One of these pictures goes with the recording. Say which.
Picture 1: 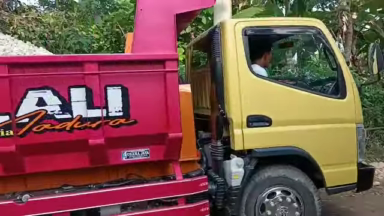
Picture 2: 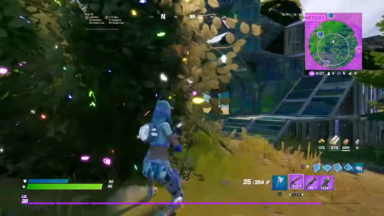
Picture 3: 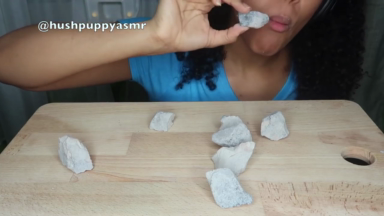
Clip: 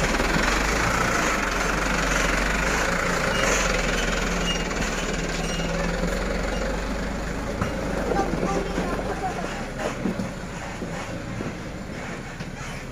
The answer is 1